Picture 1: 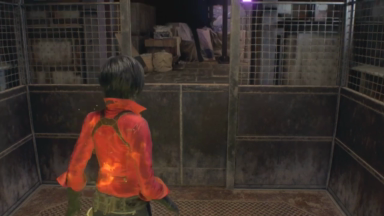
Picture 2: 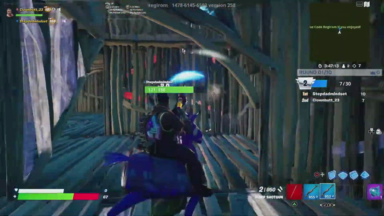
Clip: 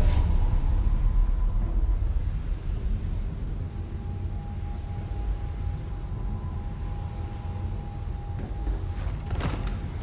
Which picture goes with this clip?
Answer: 1